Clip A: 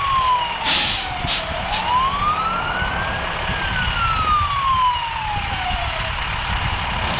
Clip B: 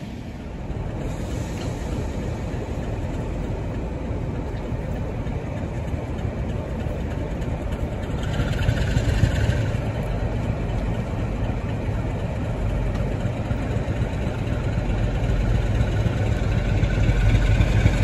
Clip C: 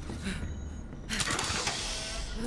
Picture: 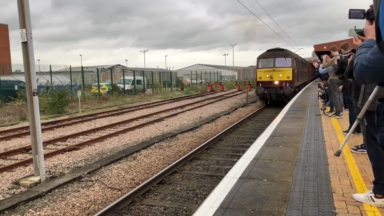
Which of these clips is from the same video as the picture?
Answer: B